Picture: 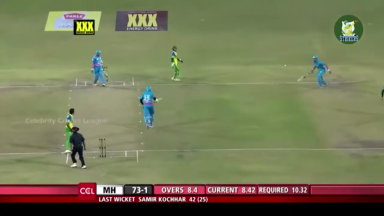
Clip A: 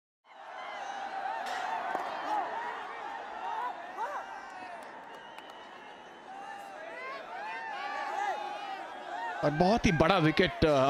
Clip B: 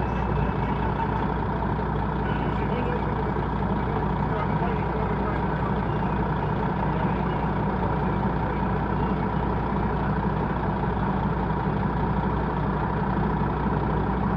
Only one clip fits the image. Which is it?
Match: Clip A